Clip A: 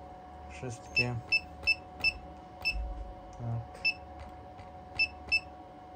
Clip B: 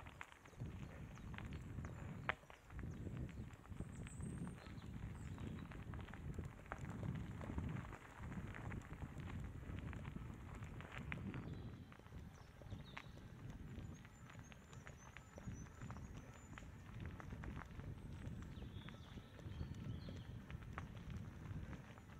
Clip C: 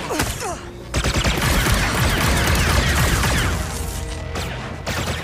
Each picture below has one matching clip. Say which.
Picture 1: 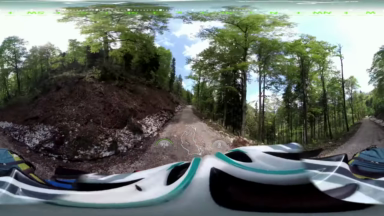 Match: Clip B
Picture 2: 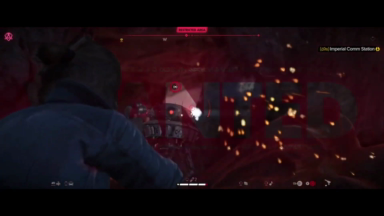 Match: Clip C